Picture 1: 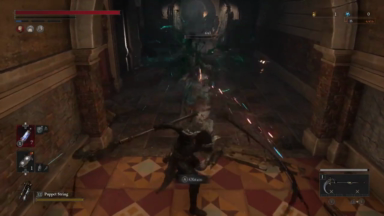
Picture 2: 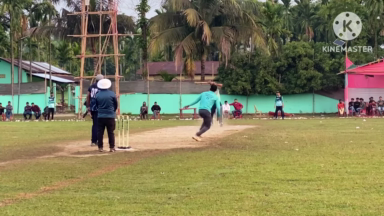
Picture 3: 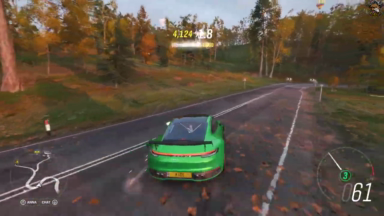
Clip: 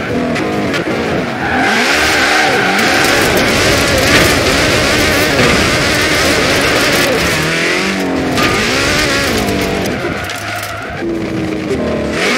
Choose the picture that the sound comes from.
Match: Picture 3